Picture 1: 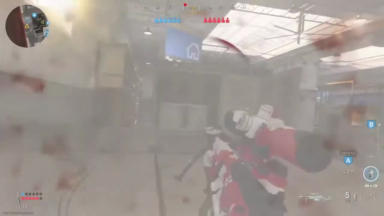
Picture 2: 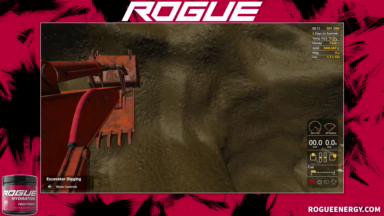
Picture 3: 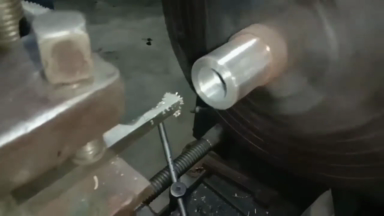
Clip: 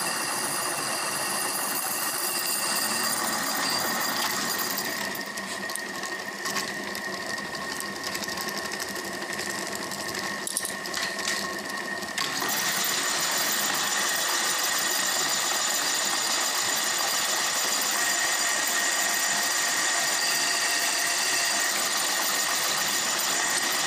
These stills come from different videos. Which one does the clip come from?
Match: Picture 3